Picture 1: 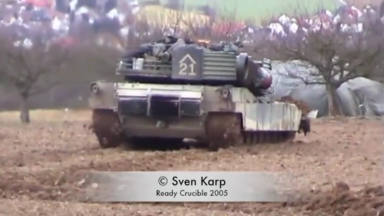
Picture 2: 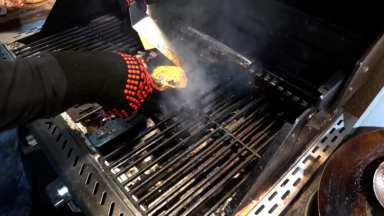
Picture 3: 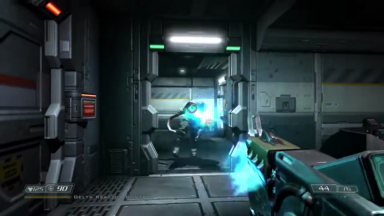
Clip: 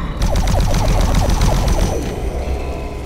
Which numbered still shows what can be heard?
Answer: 3